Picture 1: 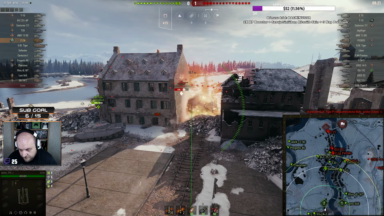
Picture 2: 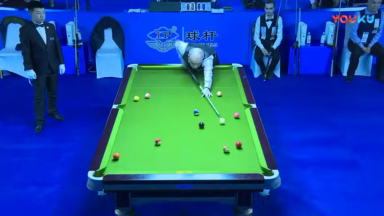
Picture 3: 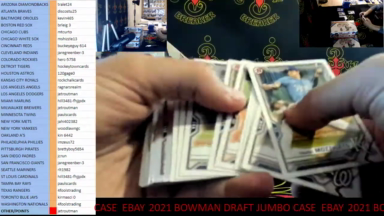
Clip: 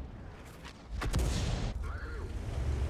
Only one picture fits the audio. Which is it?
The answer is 1